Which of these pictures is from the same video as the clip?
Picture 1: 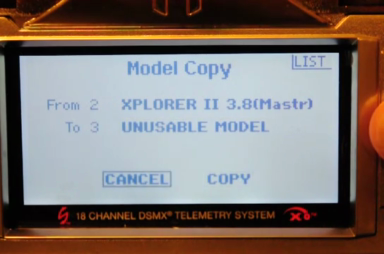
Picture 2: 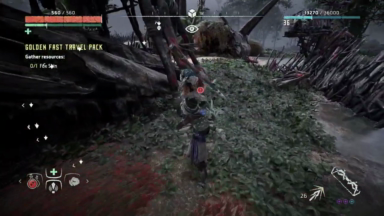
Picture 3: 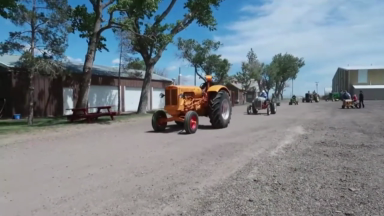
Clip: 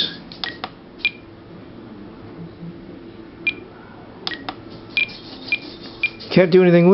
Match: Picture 1